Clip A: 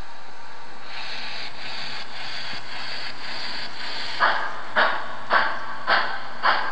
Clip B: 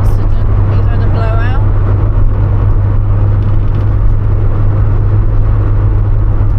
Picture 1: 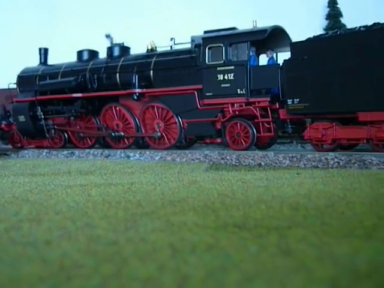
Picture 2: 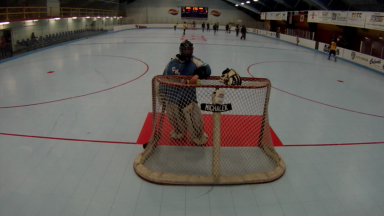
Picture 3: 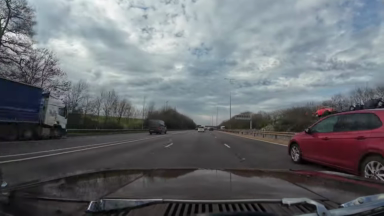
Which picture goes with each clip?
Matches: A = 1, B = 3